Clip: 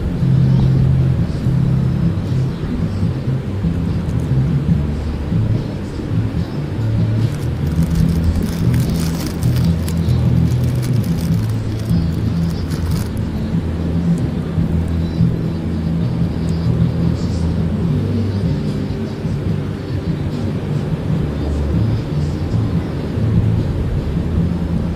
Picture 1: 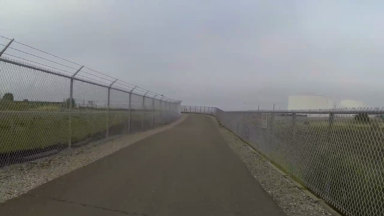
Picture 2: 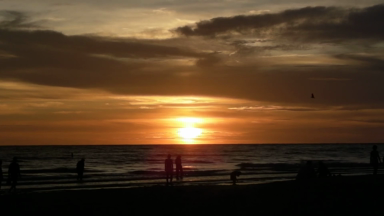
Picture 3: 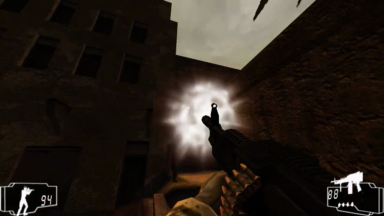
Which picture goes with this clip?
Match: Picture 2